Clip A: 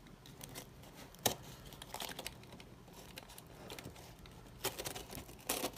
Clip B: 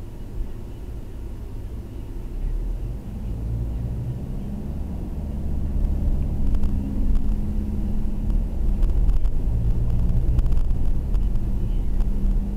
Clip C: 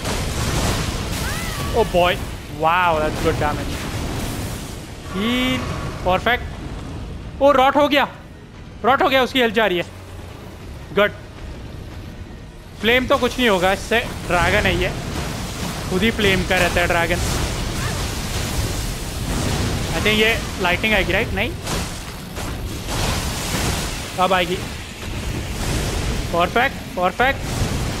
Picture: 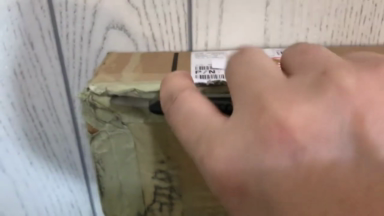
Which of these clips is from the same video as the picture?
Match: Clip A